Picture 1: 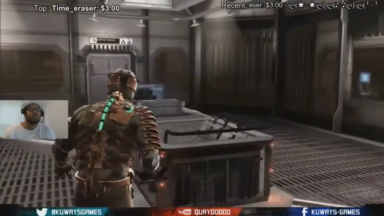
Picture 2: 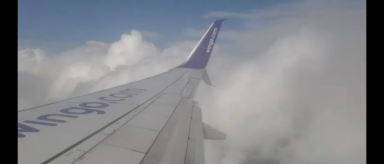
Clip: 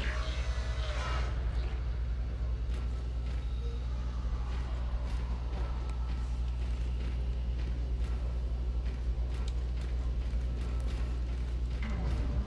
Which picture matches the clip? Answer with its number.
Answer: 1